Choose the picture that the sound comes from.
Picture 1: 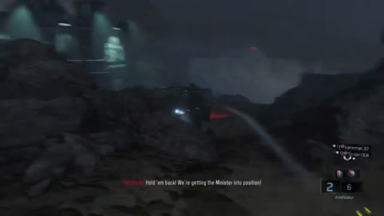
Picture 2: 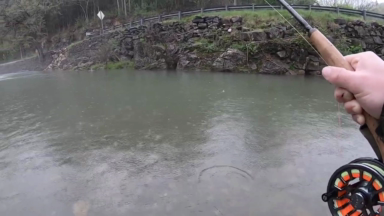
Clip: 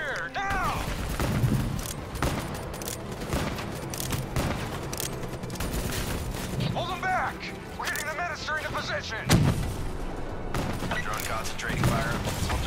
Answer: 1